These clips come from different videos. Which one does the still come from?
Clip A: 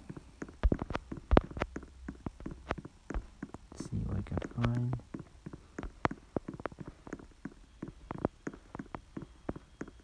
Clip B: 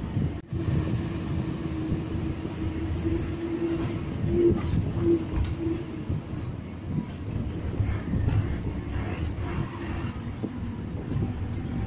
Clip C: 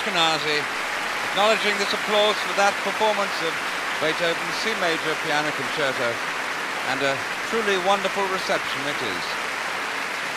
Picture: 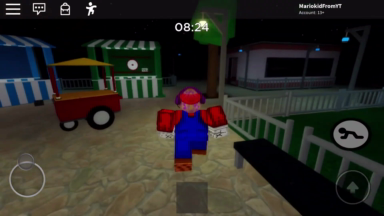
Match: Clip A